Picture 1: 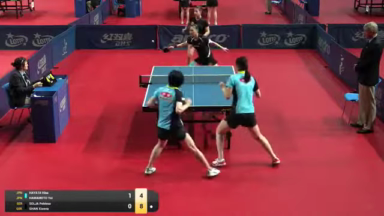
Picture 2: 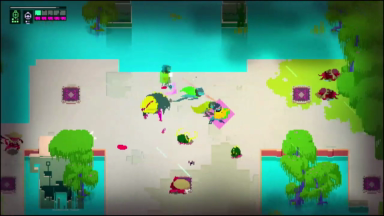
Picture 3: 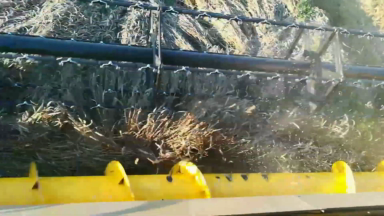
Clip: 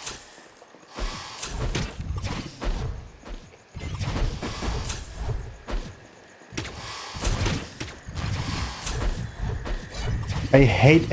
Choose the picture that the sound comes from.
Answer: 2